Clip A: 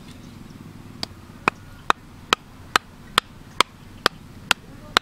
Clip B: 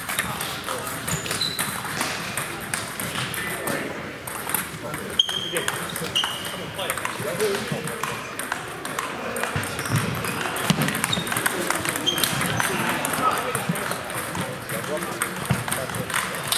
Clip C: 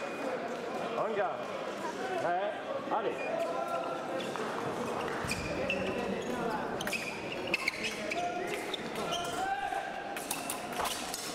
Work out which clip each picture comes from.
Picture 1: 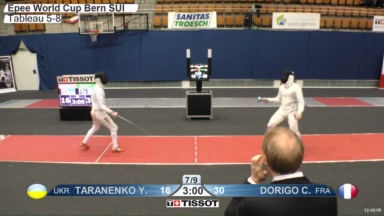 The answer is C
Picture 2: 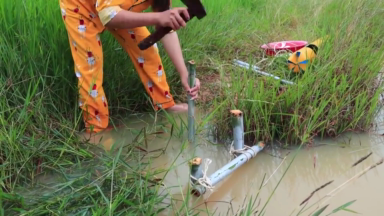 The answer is A